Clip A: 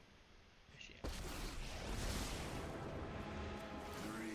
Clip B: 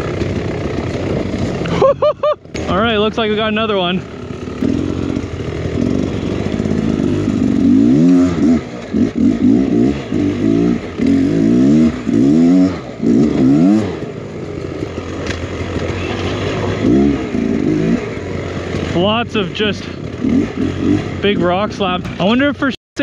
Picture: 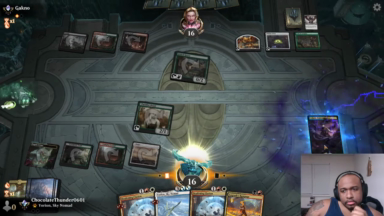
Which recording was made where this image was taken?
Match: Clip A